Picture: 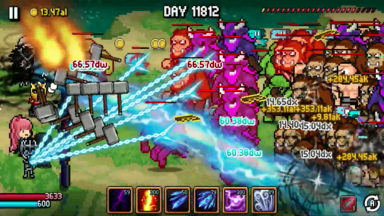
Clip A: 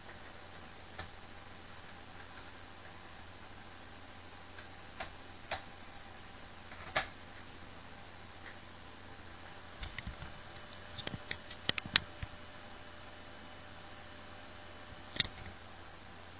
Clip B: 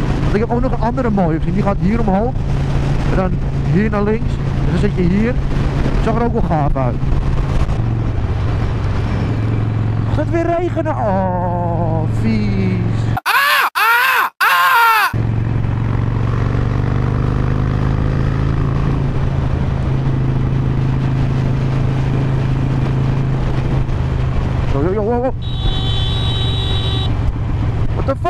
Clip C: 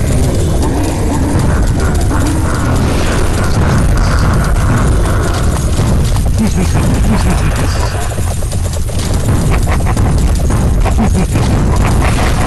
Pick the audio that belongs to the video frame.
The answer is C